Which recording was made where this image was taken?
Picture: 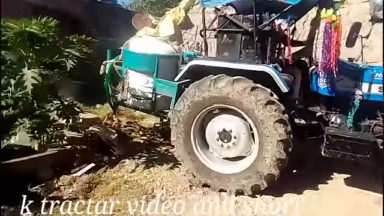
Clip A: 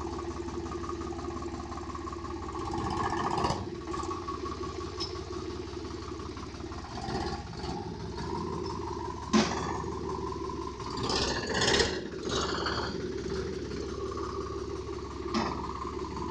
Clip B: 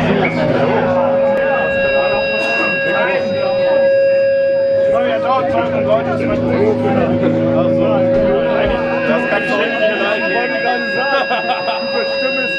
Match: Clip A